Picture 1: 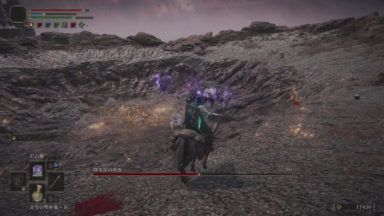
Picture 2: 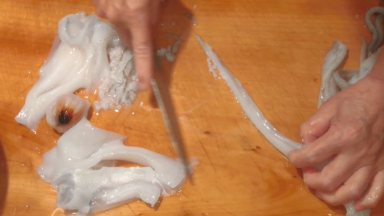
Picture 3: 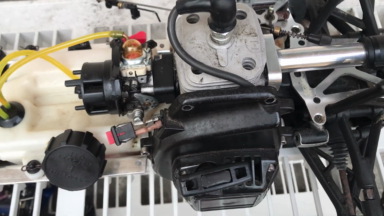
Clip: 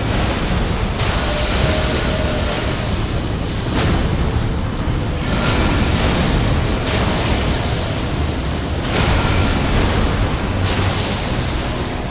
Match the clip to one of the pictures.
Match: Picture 1